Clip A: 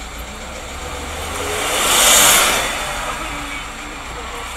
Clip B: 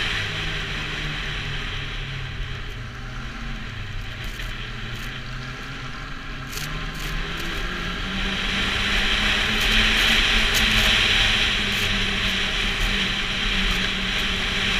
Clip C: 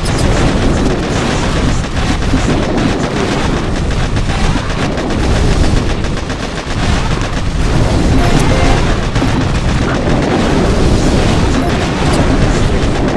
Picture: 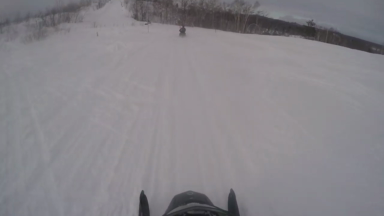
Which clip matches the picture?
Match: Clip B